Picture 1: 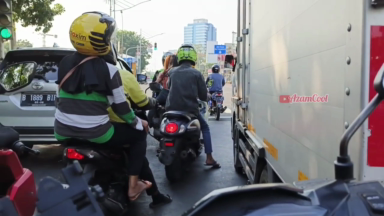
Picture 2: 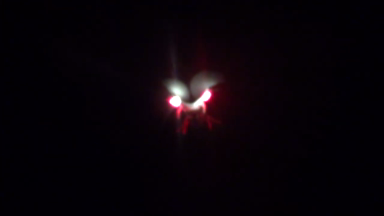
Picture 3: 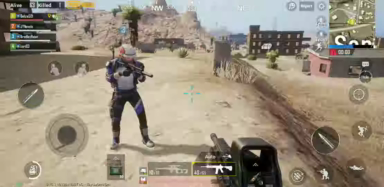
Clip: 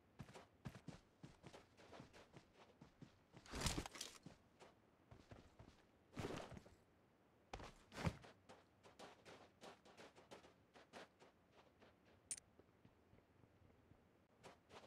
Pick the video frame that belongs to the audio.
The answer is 3